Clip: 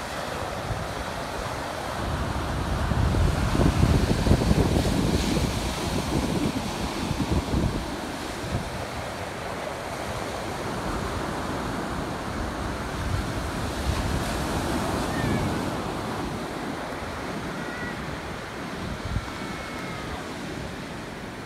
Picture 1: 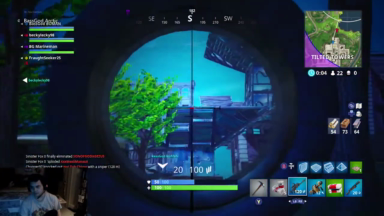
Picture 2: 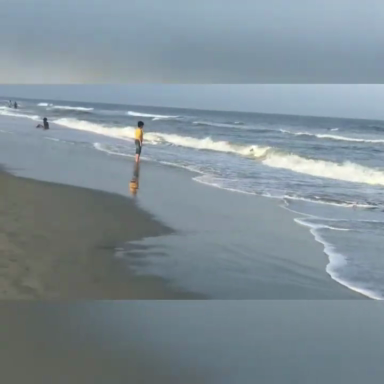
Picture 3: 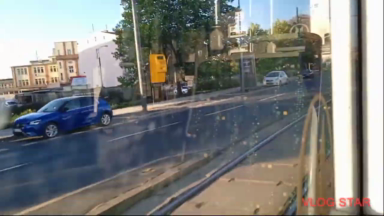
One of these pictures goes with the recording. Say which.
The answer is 2